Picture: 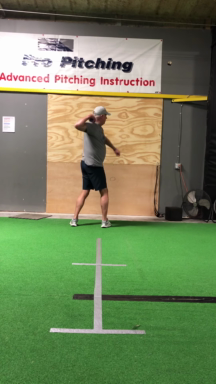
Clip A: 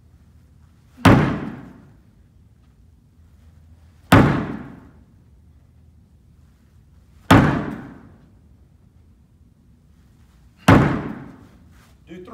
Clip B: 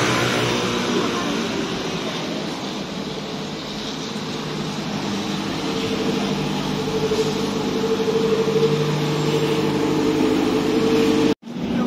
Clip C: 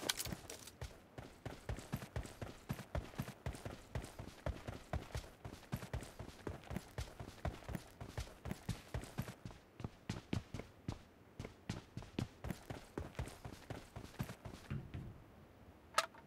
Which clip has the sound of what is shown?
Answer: A